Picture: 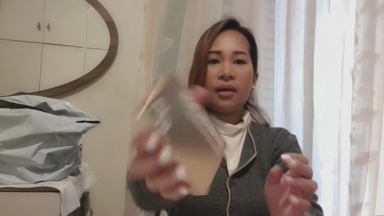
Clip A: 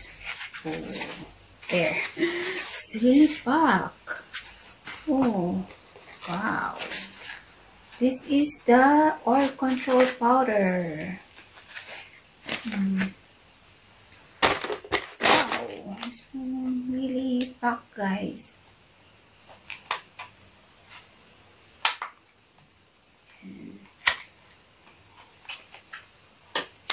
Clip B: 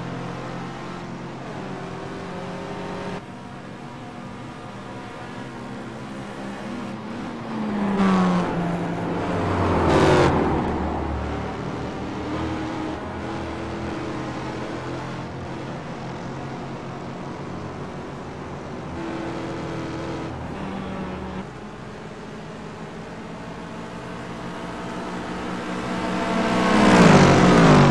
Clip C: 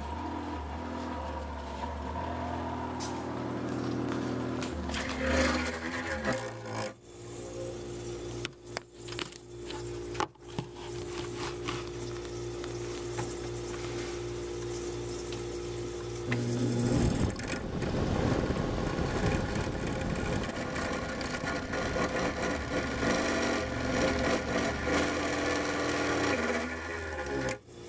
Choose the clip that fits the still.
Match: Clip A